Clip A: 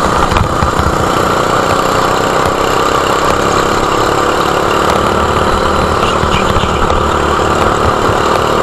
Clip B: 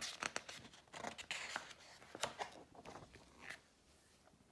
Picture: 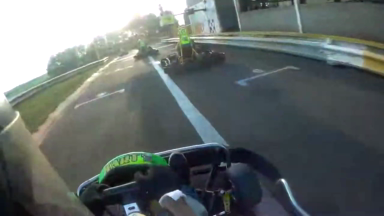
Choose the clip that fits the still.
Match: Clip A